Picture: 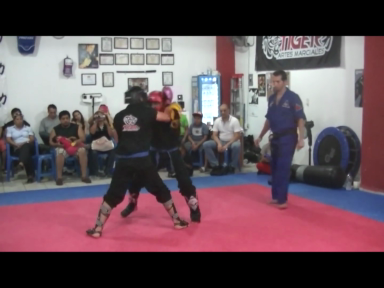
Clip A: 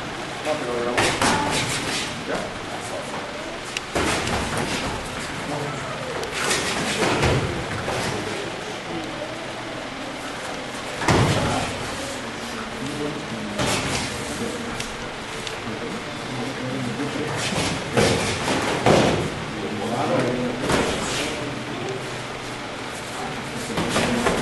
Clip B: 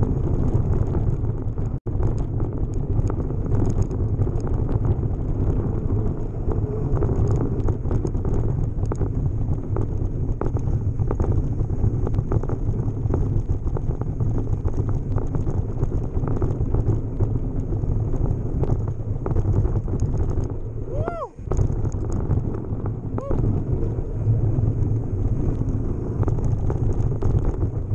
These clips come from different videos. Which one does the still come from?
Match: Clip A